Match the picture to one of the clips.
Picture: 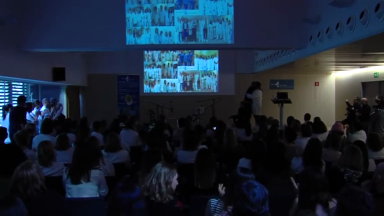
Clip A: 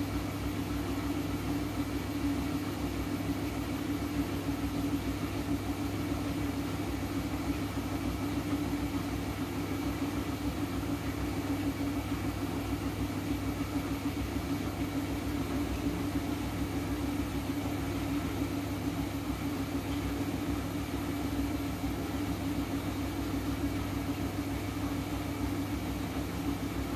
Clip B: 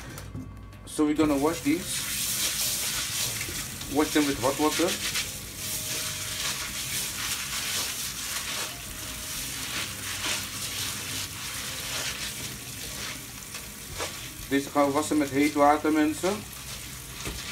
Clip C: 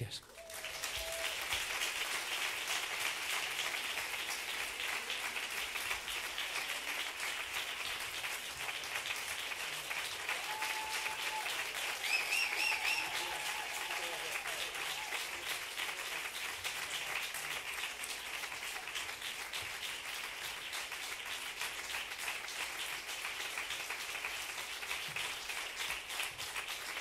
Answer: C